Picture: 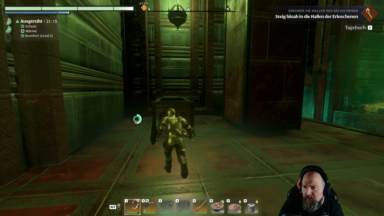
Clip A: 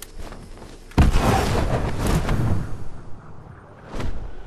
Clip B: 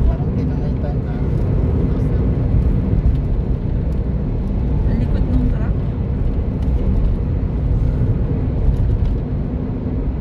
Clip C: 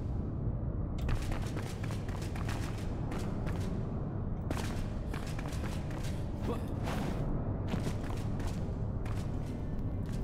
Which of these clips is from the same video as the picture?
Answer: C